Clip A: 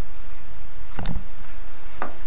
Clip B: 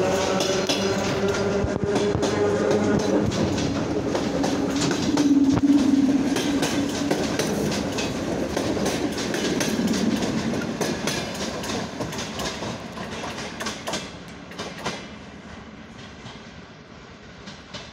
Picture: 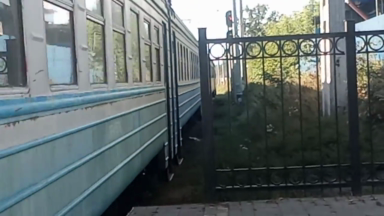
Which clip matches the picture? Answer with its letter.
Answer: B